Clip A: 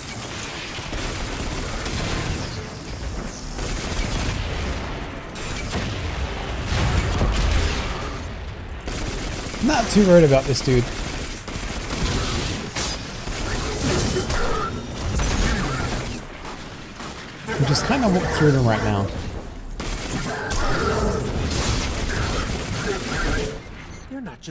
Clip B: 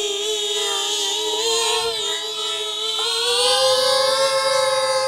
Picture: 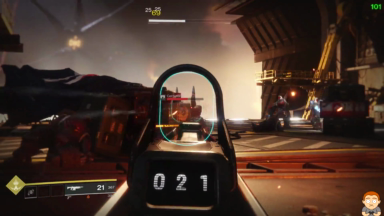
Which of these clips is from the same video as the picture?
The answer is A